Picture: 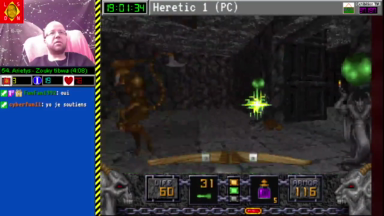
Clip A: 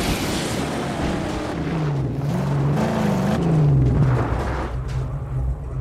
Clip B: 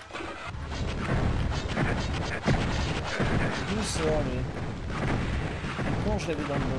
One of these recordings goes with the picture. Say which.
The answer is B